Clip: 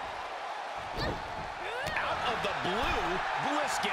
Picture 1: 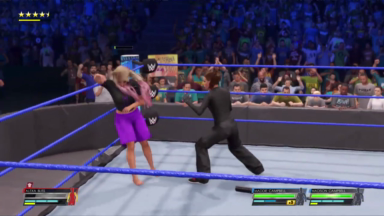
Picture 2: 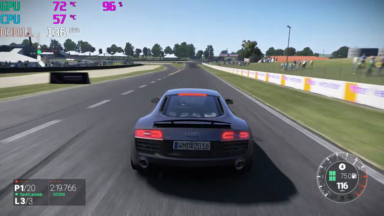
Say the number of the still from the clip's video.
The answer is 1